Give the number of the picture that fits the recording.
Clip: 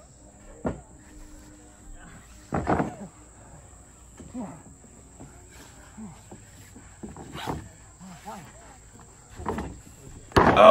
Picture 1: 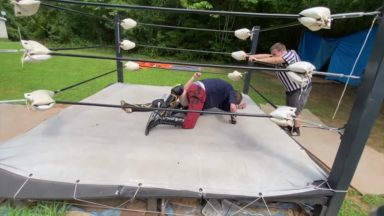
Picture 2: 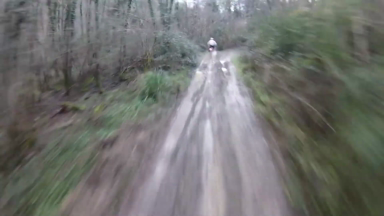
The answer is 1